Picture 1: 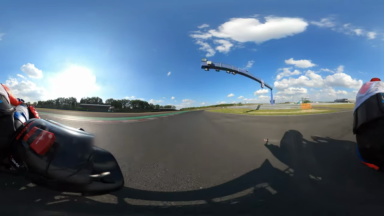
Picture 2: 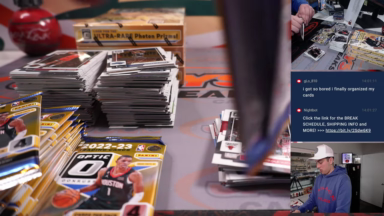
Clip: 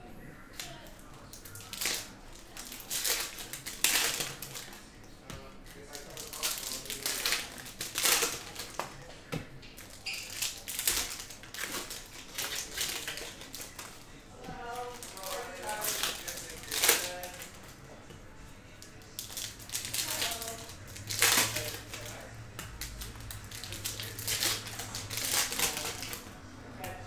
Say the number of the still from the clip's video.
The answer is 2